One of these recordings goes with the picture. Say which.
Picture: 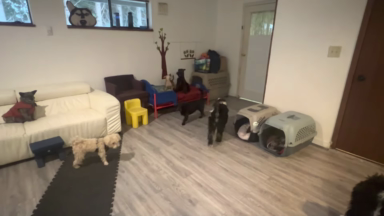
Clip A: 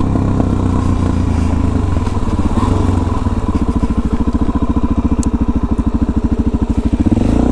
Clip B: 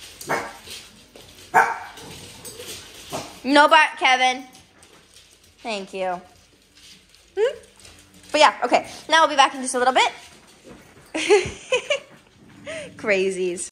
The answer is B